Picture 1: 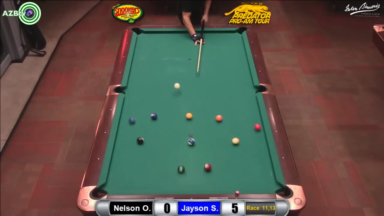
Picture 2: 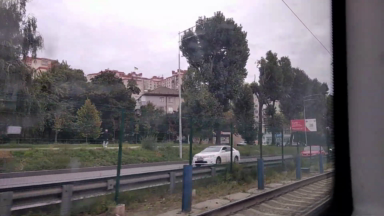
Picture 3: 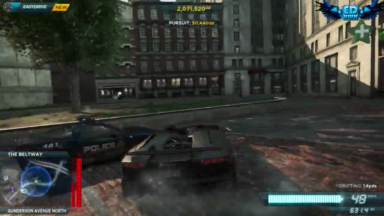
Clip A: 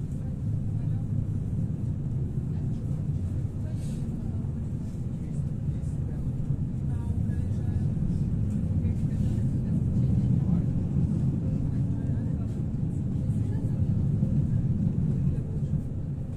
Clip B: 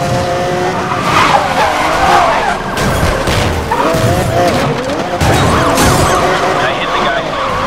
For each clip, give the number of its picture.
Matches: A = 2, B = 3